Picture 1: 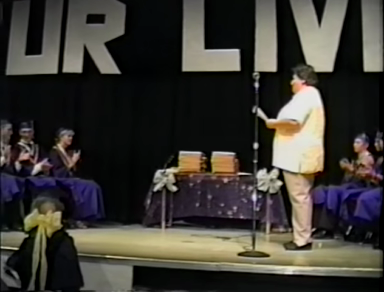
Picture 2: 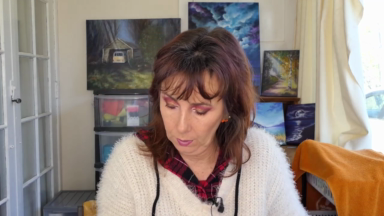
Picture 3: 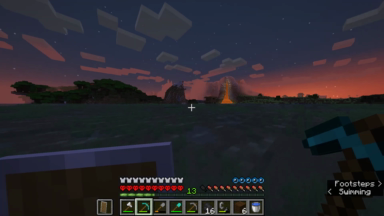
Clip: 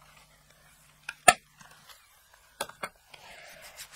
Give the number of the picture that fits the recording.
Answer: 2